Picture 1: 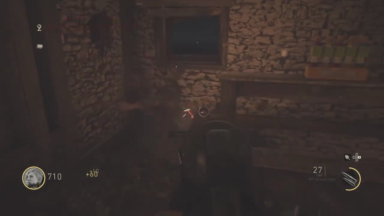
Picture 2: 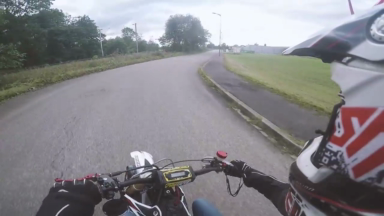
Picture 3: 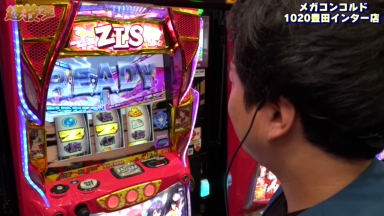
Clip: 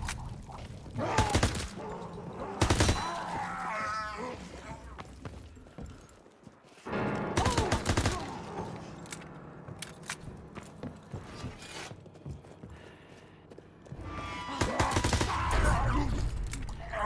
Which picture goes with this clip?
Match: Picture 1